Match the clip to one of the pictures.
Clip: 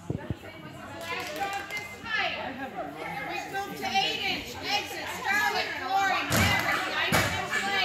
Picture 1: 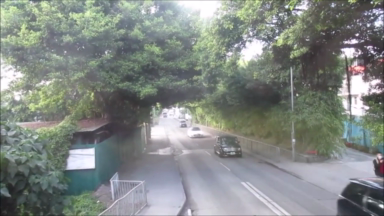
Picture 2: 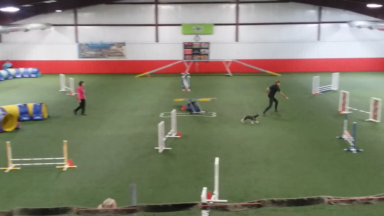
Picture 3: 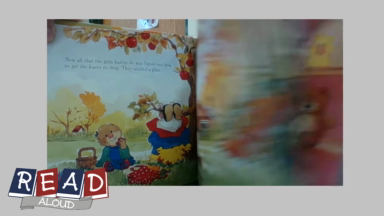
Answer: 2